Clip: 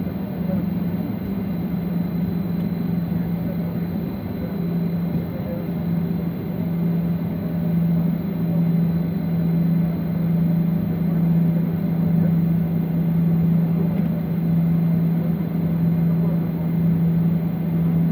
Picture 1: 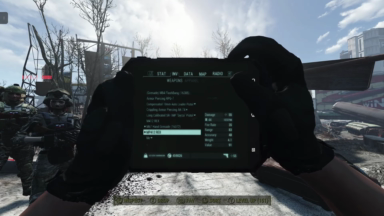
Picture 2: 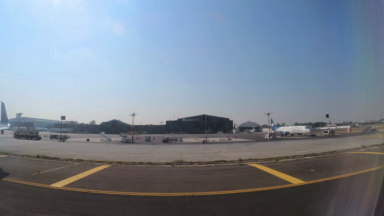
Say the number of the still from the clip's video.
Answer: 2